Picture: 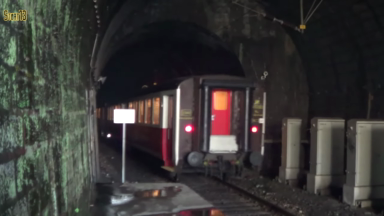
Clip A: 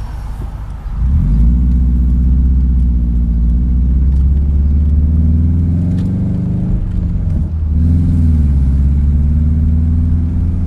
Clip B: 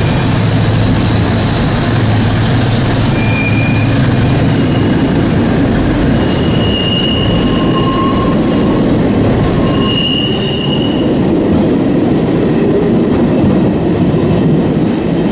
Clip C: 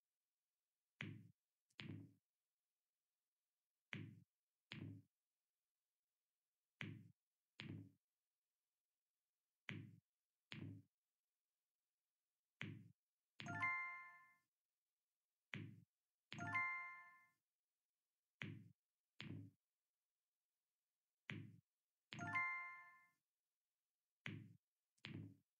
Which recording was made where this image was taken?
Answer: B